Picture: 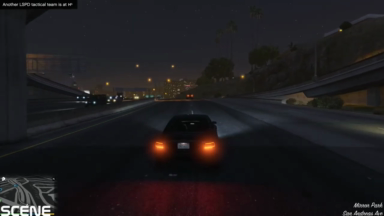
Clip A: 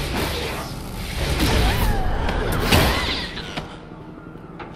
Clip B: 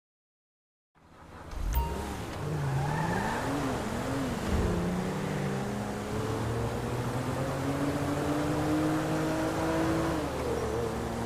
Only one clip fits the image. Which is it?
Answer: B